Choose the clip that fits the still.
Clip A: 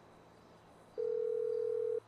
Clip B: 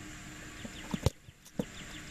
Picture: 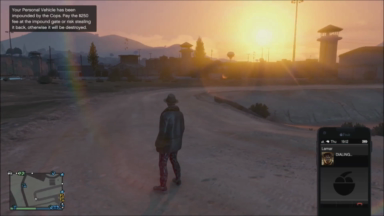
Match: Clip A